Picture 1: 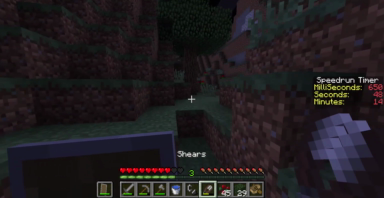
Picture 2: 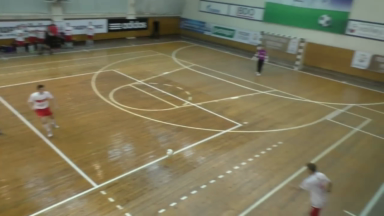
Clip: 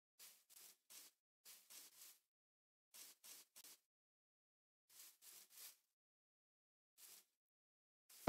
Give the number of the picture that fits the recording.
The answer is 1